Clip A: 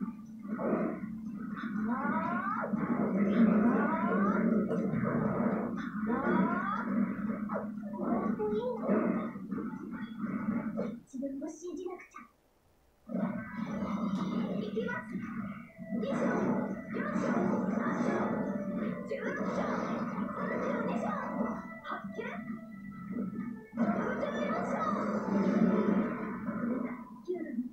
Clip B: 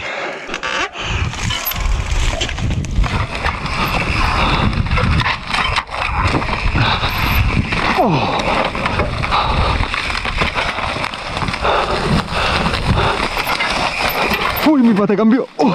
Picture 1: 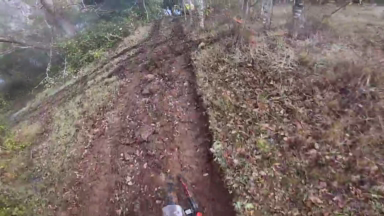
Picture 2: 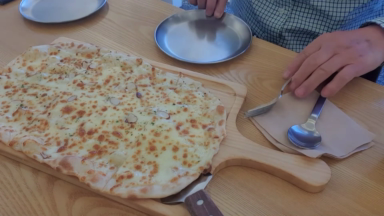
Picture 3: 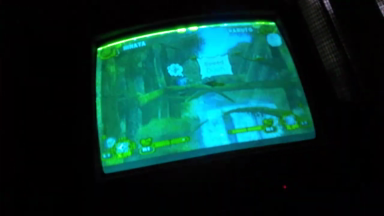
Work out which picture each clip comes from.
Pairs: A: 3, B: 1